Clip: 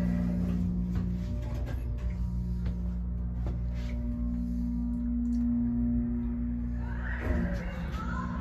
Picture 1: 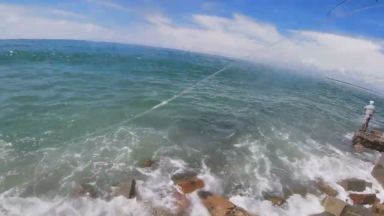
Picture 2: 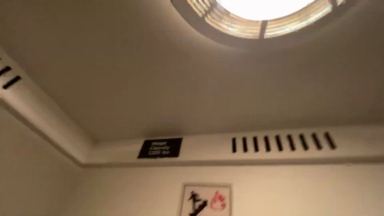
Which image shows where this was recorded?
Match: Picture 2